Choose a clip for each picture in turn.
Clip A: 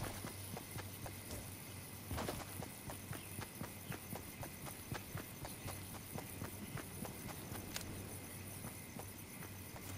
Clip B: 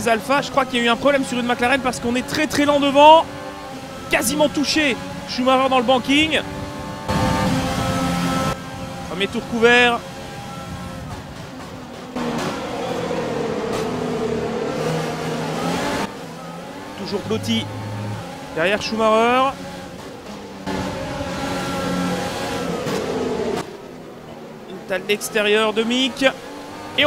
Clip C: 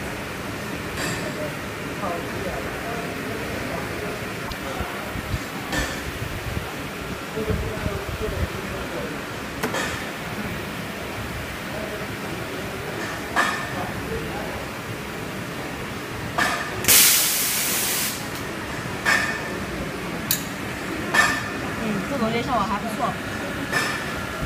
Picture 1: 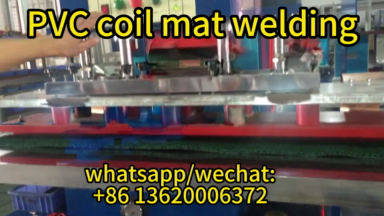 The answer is C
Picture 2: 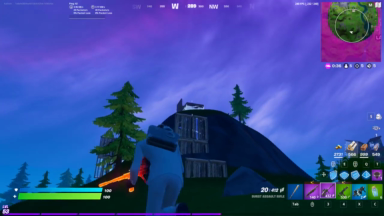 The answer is A